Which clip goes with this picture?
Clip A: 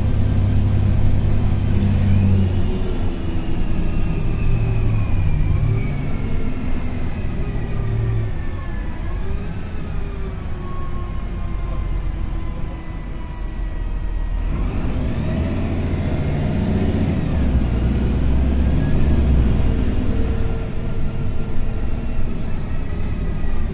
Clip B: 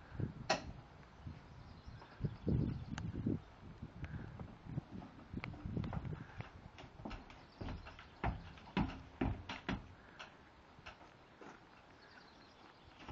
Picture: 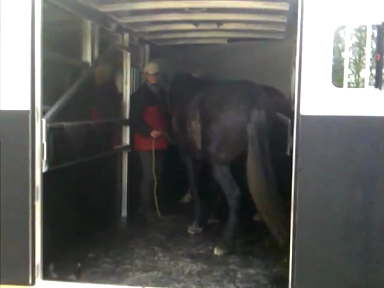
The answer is B